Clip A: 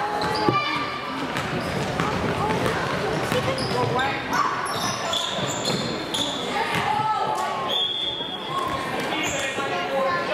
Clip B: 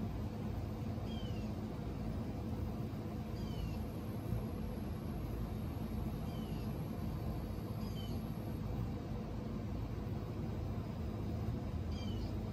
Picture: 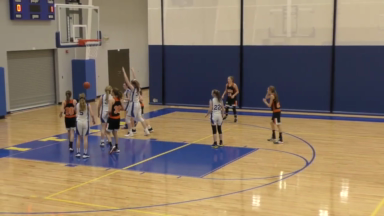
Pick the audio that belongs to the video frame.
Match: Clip A